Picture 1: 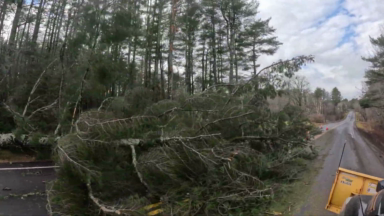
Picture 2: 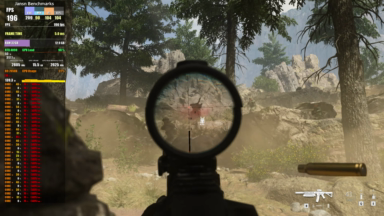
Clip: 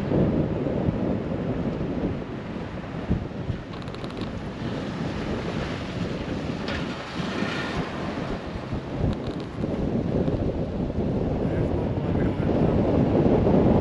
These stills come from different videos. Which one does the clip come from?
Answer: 1